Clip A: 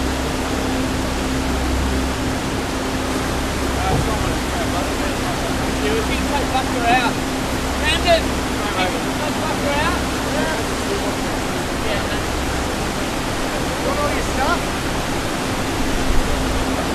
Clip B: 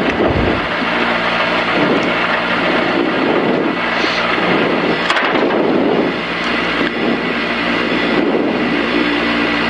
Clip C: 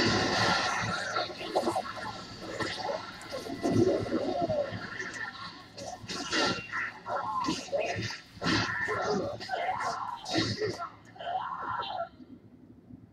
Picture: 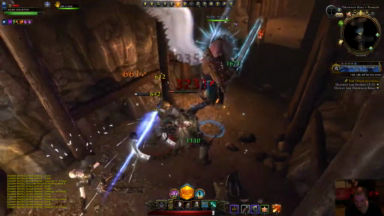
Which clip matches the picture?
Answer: C